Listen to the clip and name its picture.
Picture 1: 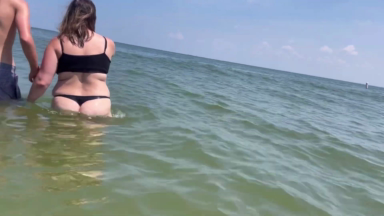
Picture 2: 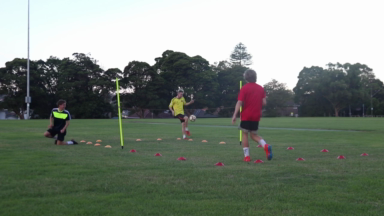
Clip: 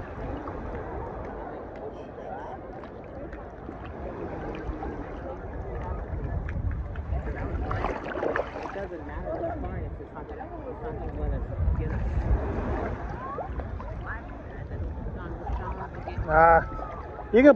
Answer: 1